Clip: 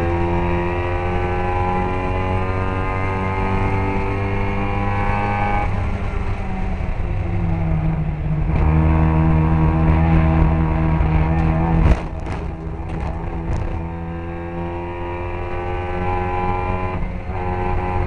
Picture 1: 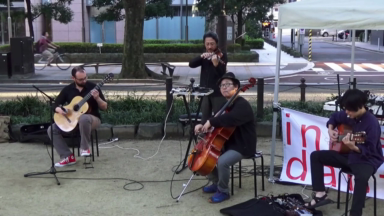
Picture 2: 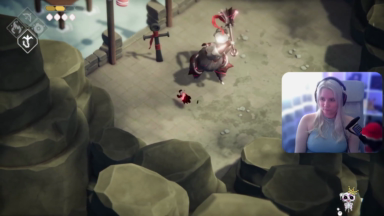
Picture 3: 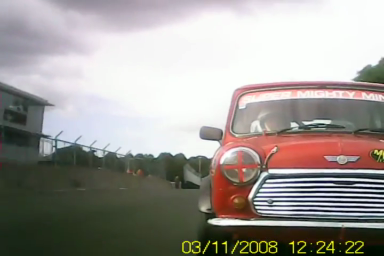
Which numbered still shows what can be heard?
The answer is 3